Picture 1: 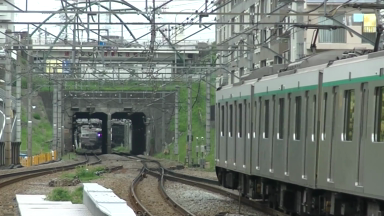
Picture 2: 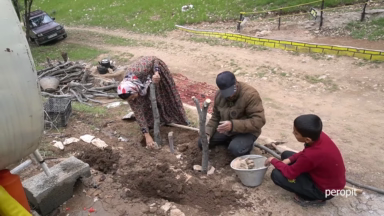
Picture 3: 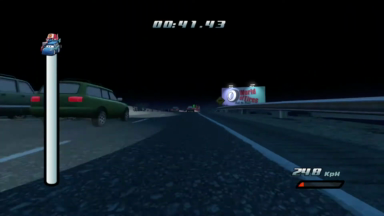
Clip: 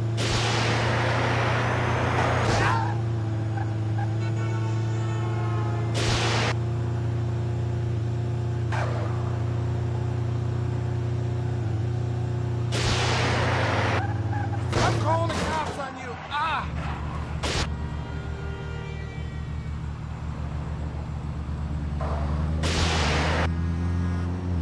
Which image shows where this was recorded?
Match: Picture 3